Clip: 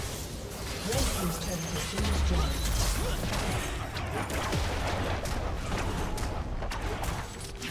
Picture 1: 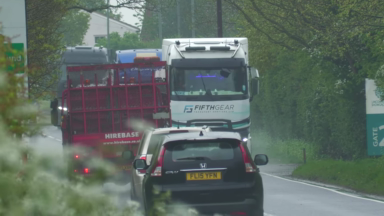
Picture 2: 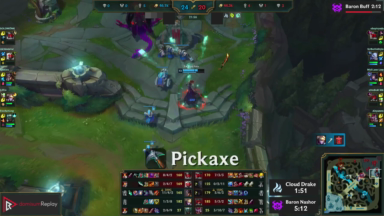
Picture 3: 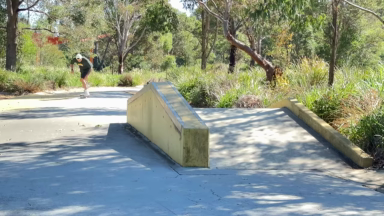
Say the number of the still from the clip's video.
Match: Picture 2